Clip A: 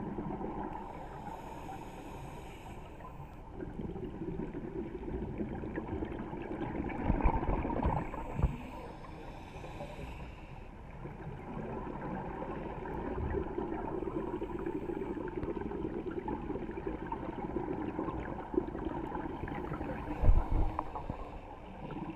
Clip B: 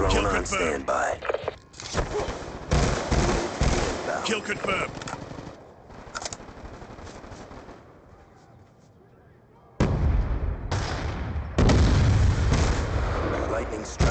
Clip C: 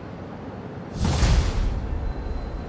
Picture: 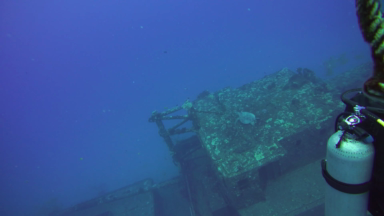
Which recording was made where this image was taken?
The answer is A